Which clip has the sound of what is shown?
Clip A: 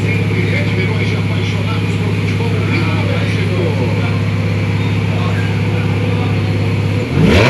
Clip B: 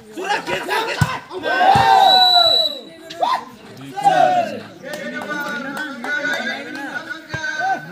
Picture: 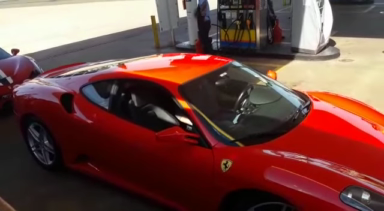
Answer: A